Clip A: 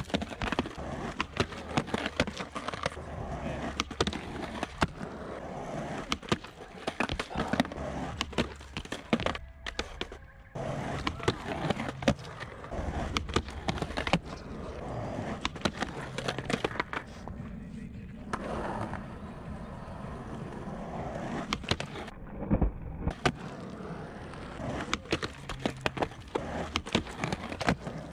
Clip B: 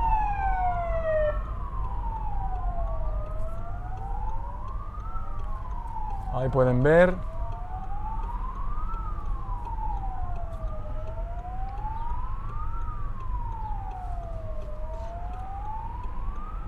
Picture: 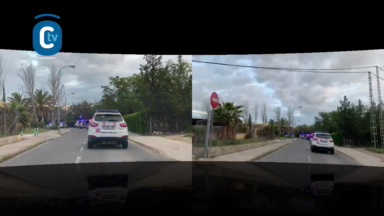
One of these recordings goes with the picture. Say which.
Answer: B